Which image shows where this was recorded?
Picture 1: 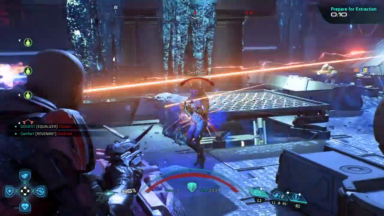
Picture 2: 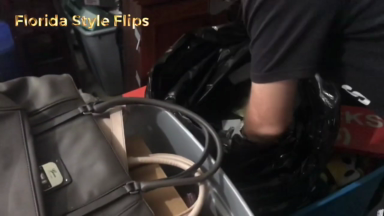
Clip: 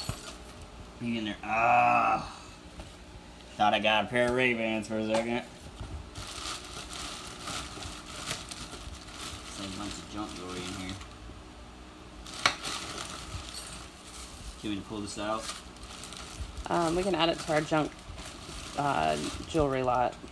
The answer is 2